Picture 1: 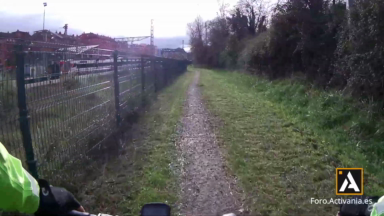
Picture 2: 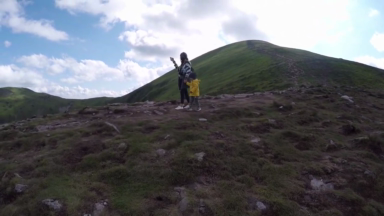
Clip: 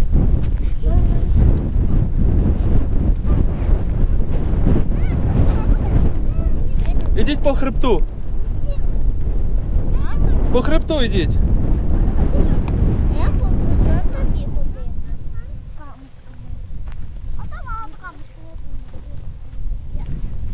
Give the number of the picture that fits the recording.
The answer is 2